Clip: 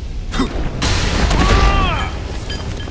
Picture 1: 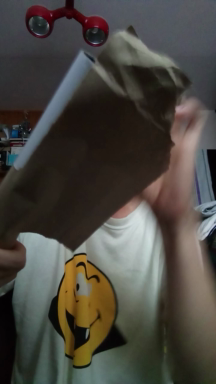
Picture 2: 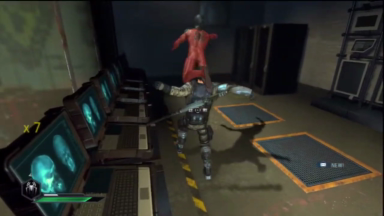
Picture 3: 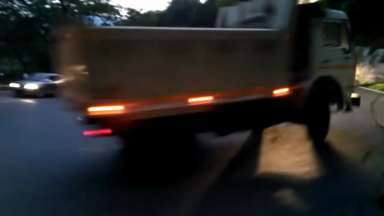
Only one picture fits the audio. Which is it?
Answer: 2